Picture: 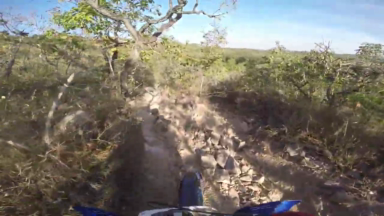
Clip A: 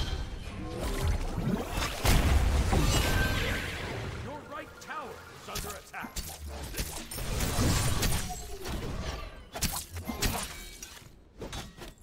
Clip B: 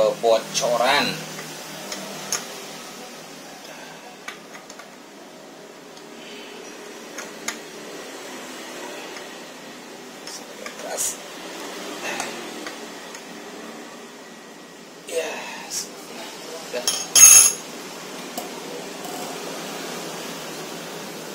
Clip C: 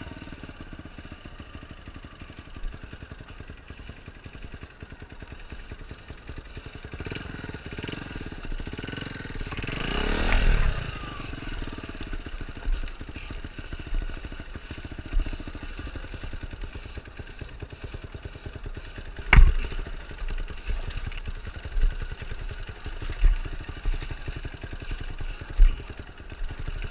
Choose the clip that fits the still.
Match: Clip C